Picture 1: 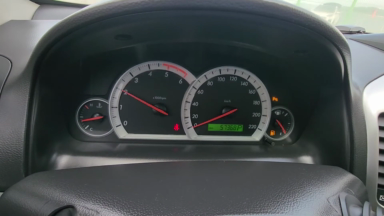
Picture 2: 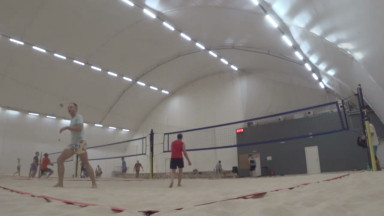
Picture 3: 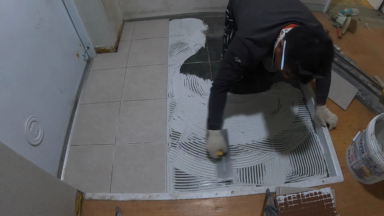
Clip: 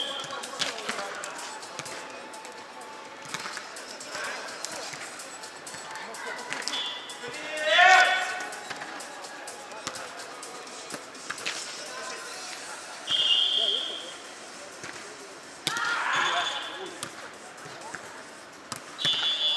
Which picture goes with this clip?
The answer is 2